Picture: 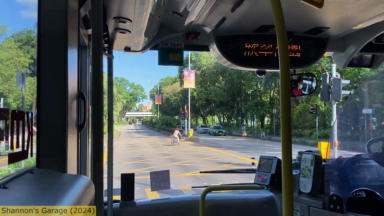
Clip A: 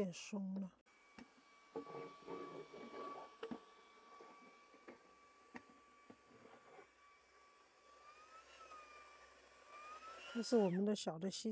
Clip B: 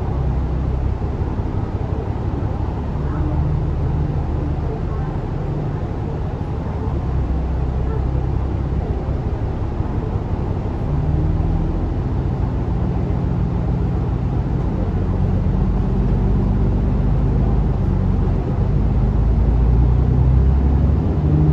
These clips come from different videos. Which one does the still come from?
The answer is B